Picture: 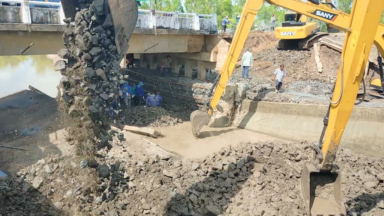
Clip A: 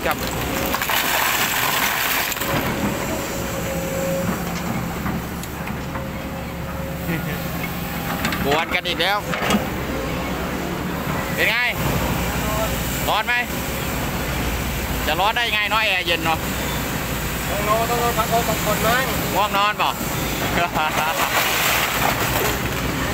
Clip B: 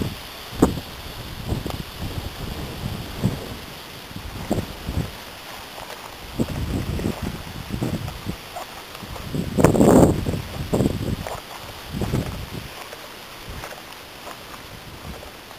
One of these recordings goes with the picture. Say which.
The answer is A